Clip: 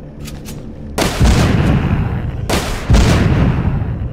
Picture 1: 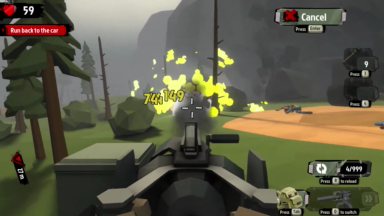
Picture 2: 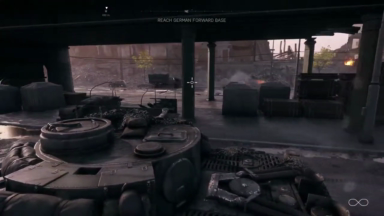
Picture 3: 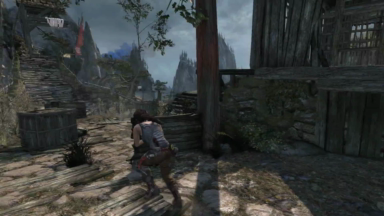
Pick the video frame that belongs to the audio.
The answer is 1